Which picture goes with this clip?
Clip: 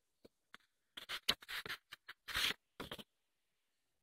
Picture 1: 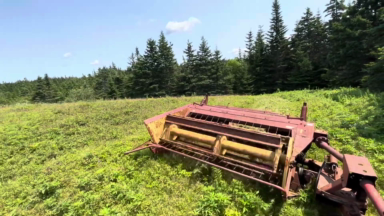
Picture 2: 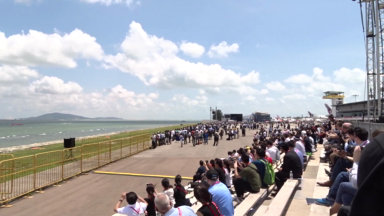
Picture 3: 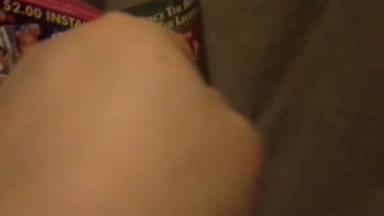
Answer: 3